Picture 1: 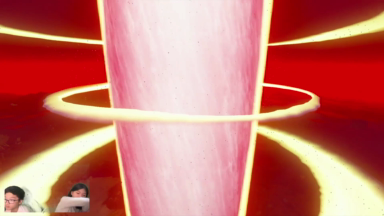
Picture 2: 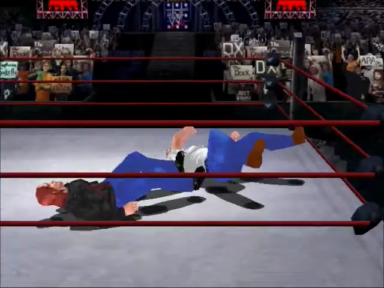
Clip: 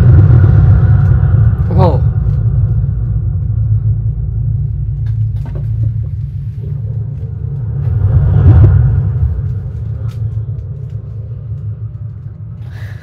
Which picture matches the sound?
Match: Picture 1